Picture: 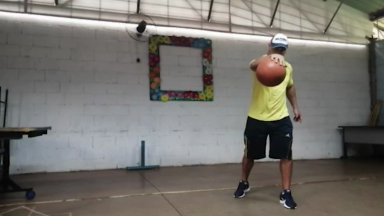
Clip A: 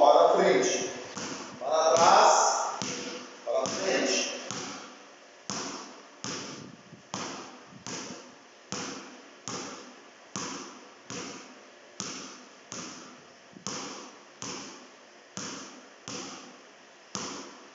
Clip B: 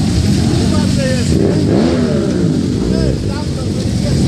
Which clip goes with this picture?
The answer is A